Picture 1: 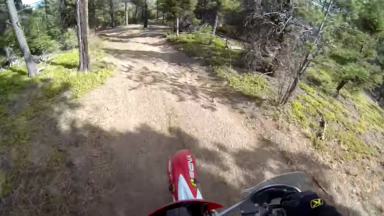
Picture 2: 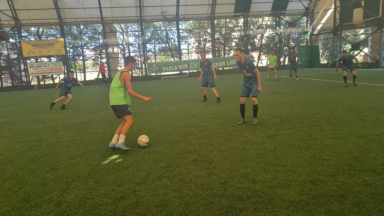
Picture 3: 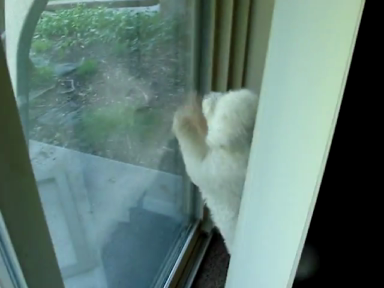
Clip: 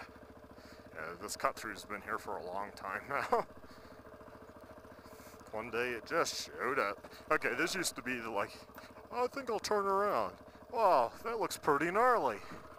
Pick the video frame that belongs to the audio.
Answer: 1